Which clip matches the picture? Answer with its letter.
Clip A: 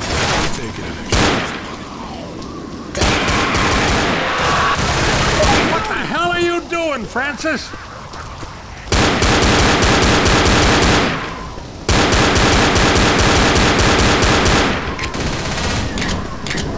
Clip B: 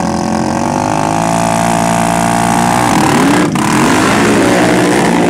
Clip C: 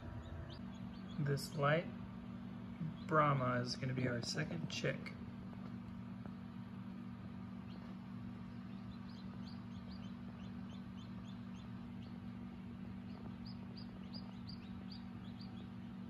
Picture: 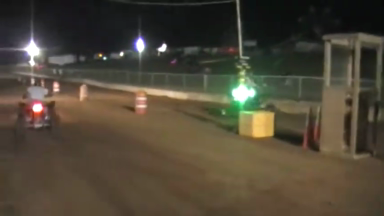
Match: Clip B